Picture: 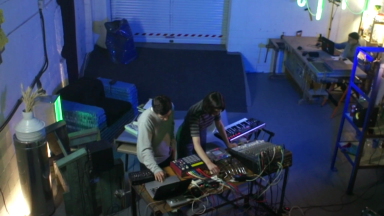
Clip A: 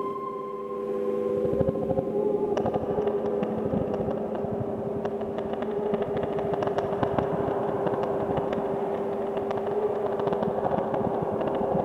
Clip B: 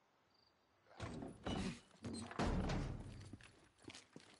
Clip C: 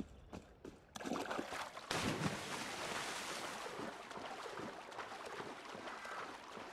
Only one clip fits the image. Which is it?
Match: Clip A